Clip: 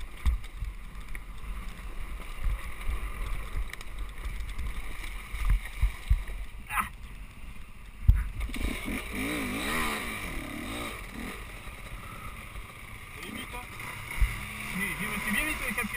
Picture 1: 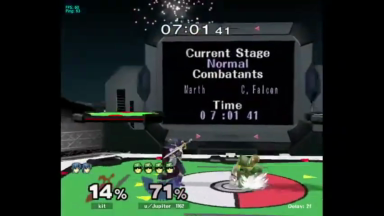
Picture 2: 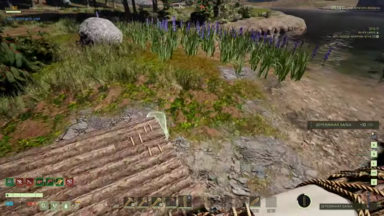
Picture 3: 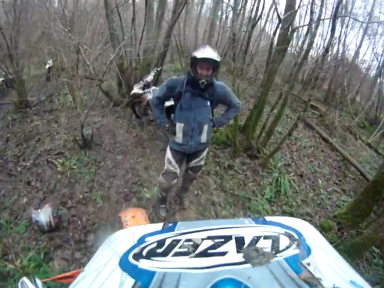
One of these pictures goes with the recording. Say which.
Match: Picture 3